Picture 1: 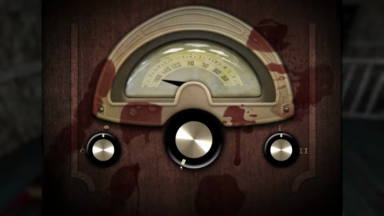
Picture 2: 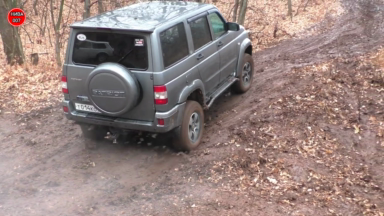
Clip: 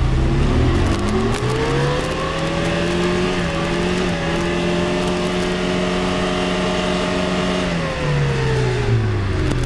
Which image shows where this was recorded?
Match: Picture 2